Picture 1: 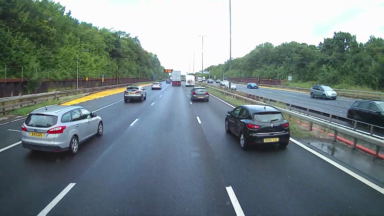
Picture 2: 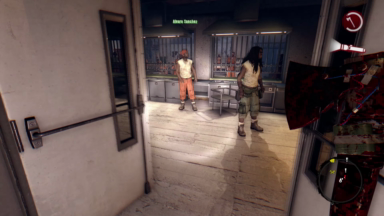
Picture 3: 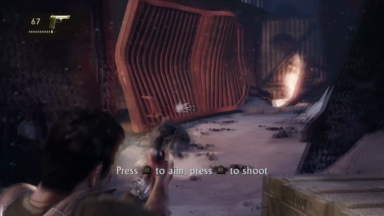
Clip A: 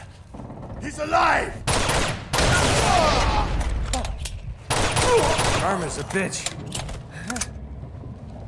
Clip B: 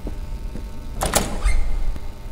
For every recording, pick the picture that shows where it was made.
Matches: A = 3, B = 2